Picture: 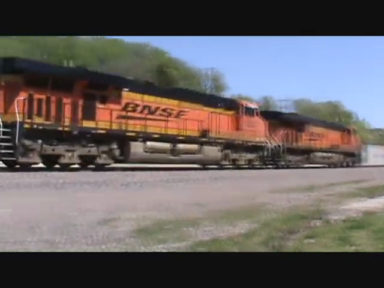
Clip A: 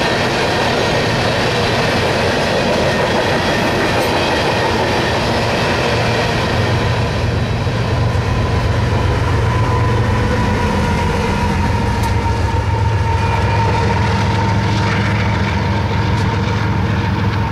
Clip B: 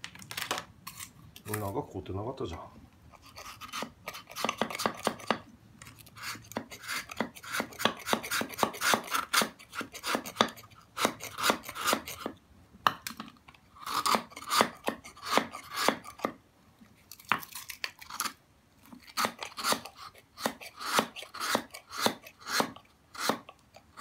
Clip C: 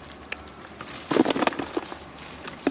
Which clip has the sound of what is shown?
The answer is A